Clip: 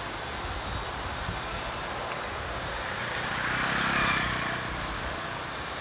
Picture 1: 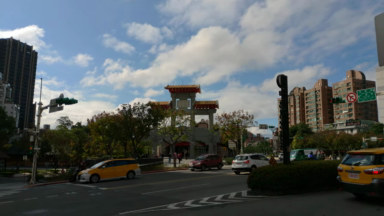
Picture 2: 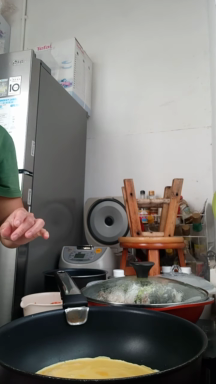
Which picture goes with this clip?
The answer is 1